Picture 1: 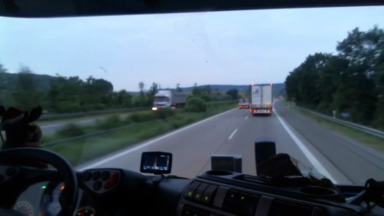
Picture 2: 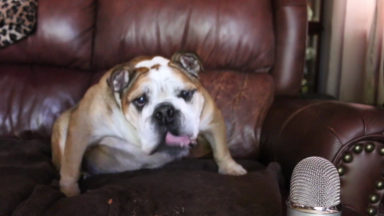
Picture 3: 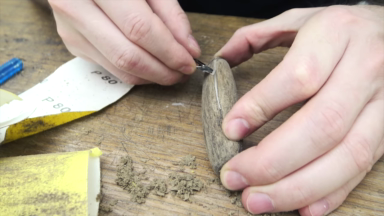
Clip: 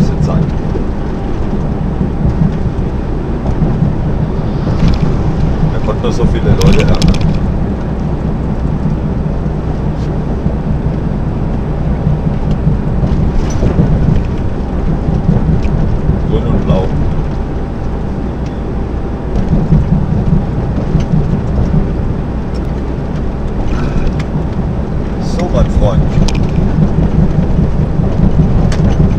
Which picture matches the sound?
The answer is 1